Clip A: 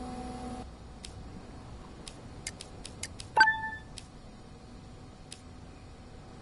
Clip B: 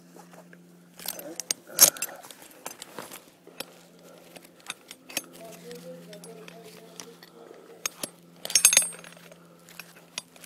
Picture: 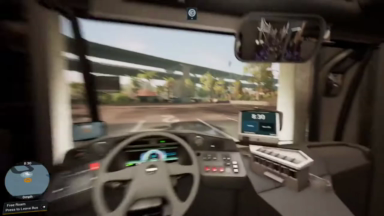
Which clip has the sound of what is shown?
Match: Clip A